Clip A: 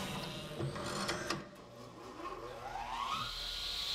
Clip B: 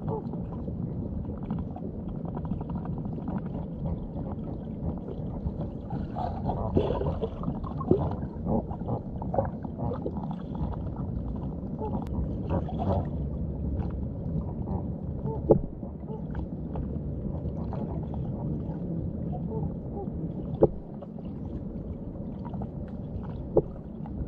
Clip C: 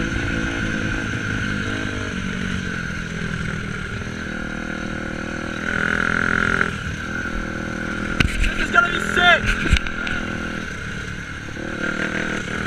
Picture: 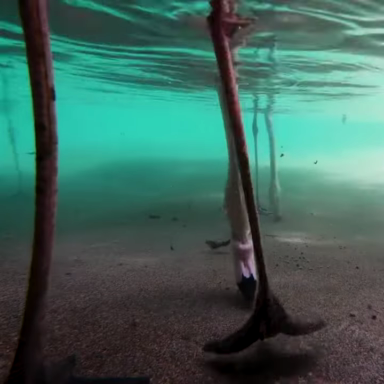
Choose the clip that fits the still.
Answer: B